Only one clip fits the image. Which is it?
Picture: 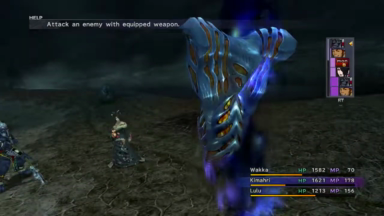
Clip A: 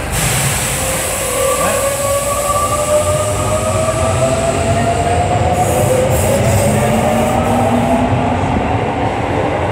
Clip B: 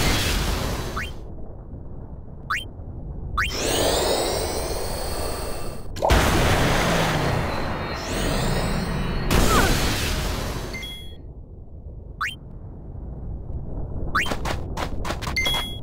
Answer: B